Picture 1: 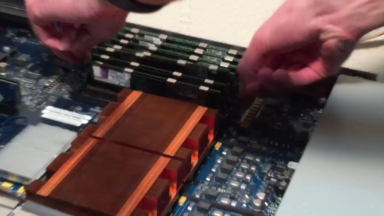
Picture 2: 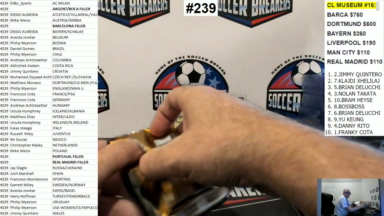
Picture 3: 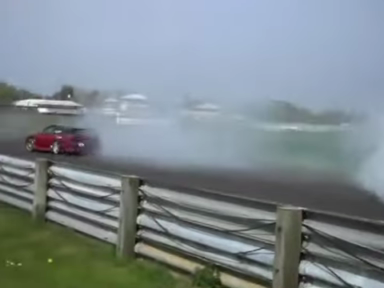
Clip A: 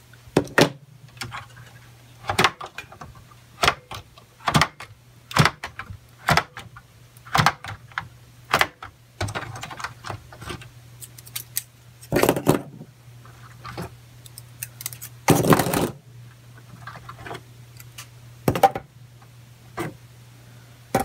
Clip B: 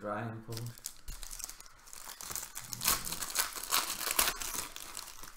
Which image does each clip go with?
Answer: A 1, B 2